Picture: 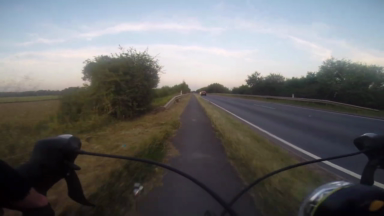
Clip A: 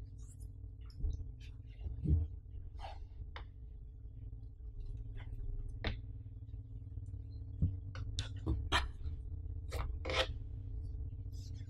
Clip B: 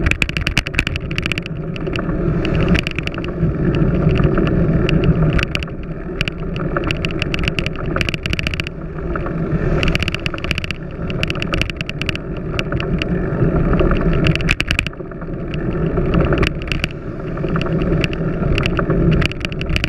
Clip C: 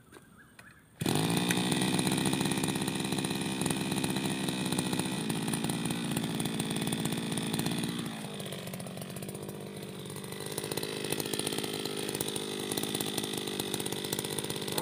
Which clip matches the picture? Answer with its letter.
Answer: B